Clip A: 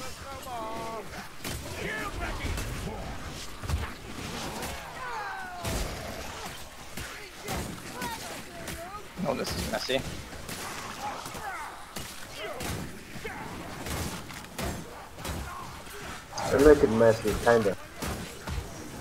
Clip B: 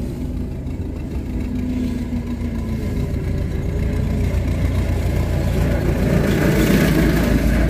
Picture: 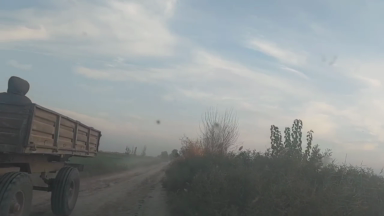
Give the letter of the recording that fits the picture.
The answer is B